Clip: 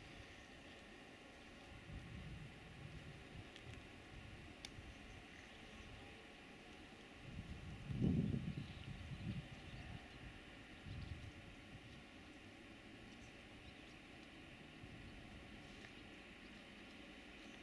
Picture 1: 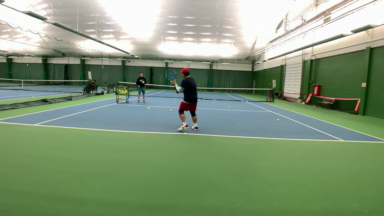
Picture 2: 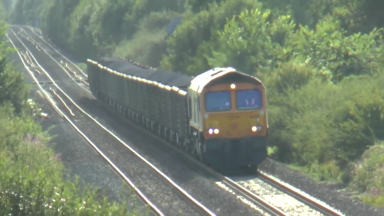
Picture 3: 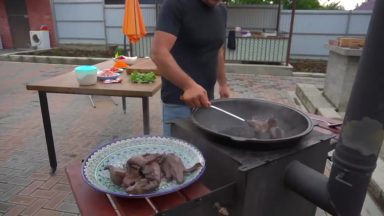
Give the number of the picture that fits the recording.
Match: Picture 2